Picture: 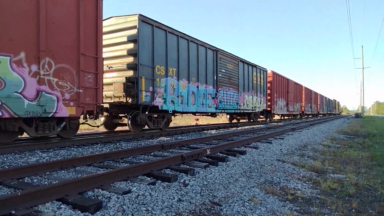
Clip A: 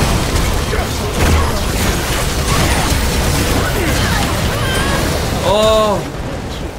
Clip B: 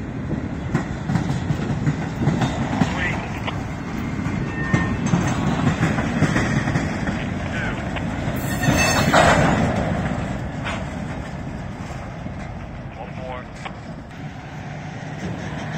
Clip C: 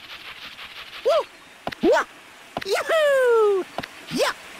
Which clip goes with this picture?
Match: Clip B